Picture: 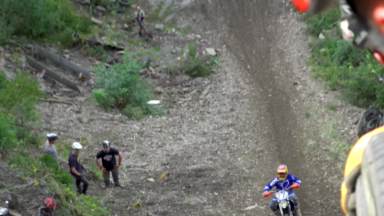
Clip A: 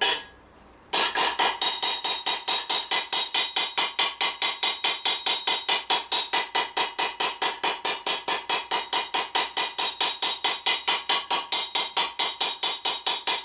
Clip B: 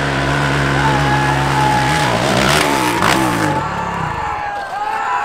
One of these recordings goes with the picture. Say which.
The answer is B